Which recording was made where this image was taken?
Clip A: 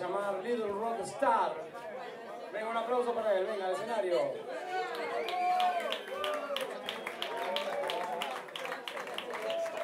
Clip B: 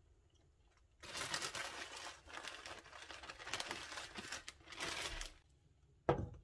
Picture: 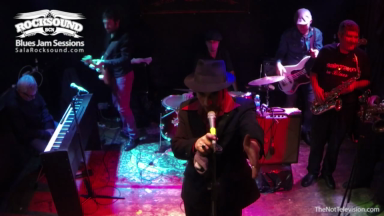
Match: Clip A